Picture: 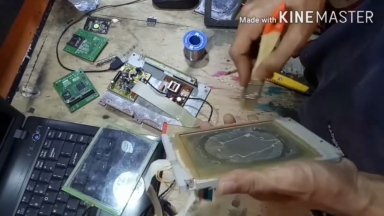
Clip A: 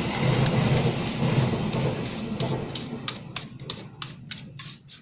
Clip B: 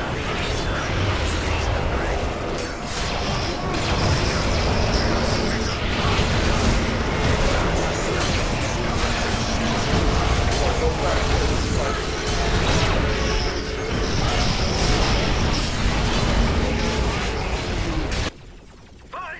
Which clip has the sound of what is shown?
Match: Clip A